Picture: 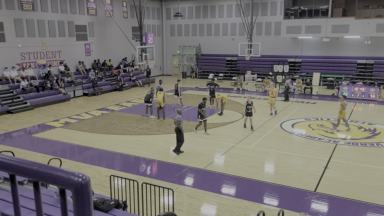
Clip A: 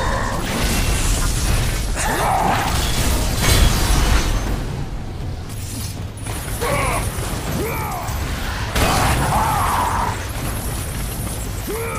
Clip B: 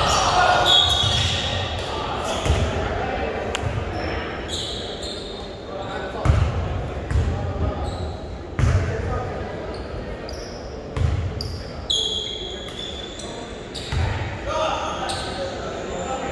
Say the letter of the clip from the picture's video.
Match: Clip B